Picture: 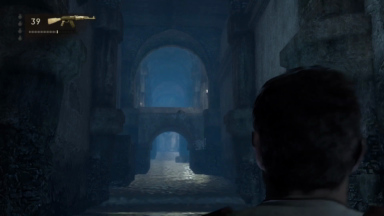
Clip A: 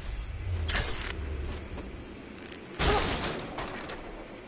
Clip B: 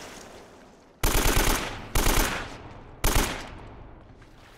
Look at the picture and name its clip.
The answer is B